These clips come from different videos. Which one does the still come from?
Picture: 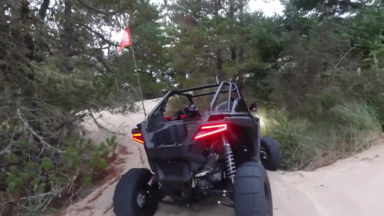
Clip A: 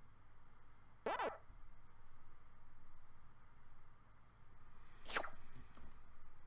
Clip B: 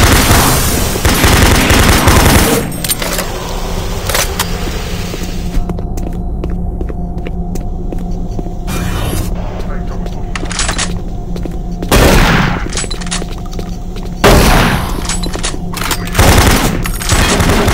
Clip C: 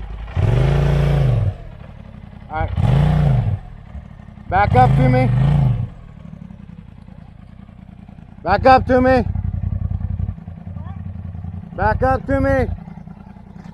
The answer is C